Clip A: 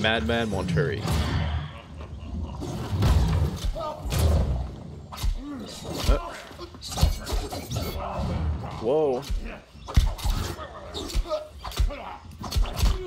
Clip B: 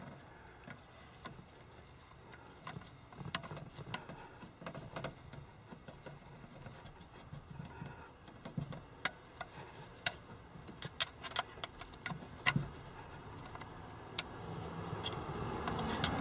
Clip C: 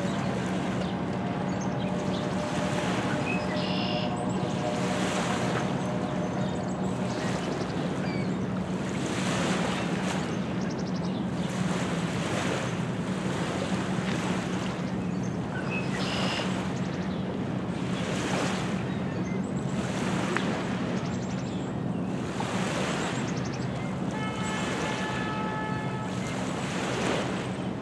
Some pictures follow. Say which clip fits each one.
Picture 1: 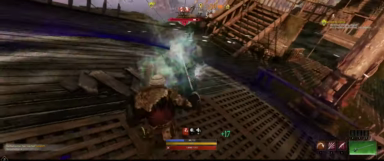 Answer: A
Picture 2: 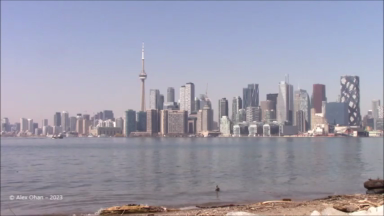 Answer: C